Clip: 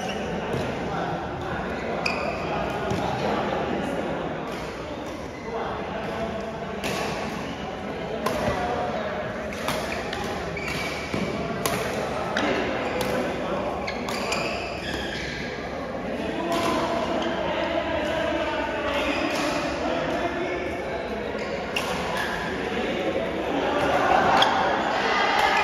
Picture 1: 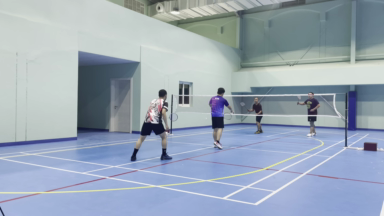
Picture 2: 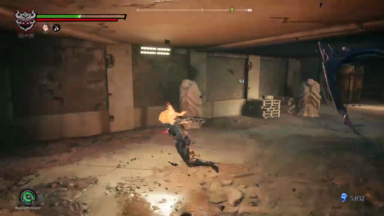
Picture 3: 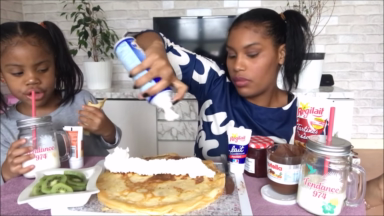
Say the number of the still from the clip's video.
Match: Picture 1